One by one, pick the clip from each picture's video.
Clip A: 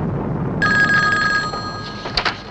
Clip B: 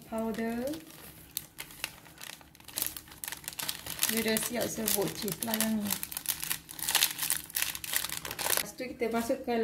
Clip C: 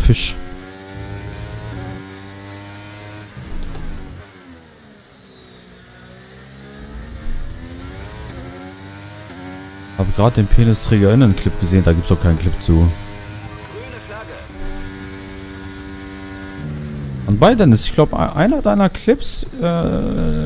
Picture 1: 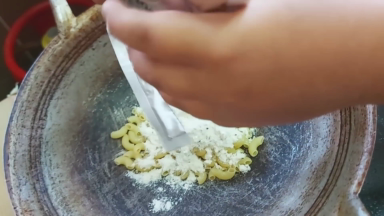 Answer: B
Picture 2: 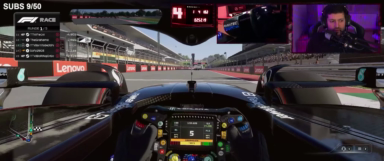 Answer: C